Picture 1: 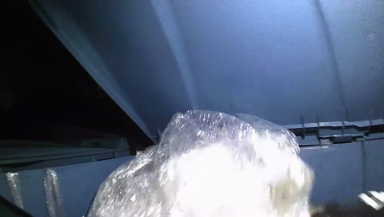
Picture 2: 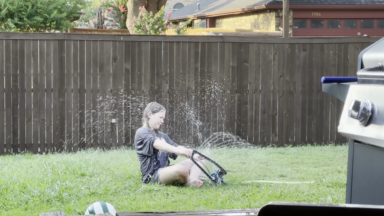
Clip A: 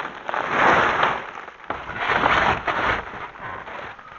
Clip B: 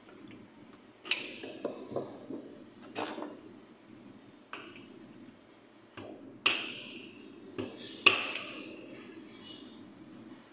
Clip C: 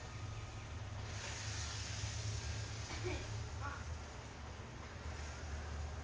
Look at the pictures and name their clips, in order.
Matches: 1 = A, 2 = C